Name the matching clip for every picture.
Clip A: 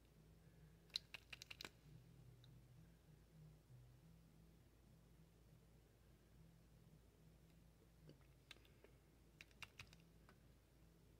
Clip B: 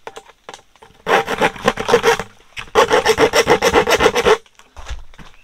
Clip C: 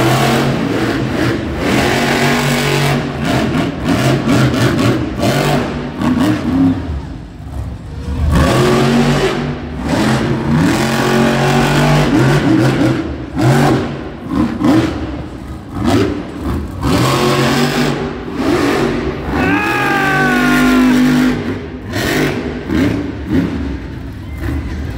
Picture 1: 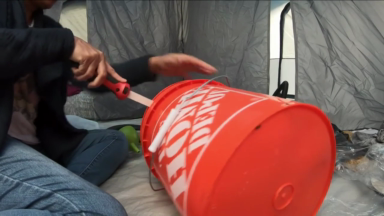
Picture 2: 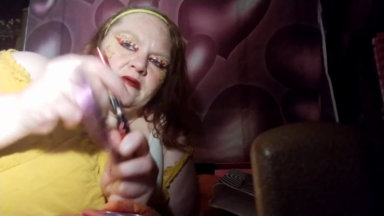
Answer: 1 B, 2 A